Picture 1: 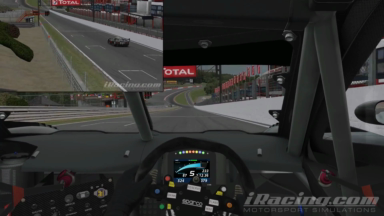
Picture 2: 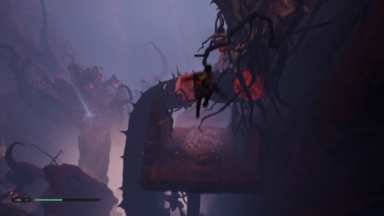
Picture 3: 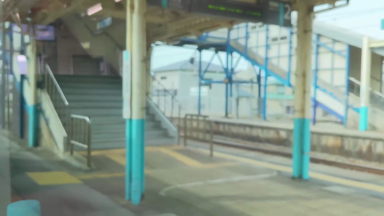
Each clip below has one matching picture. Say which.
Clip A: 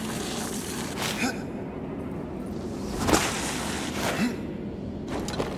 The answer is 2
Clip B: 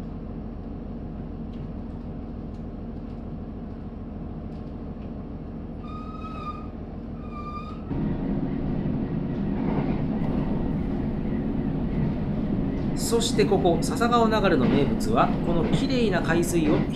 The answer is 3